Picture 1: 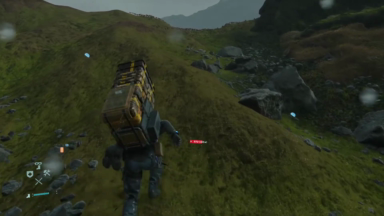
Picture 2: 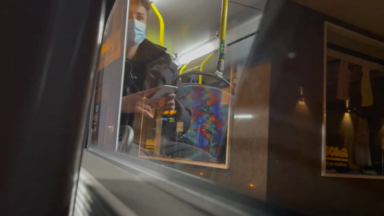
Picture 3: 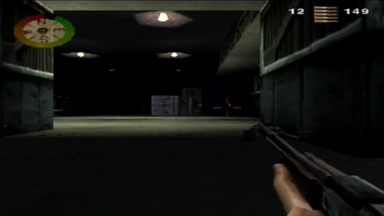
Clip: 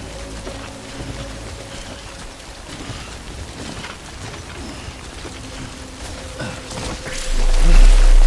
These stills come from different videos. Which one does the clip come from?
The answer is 1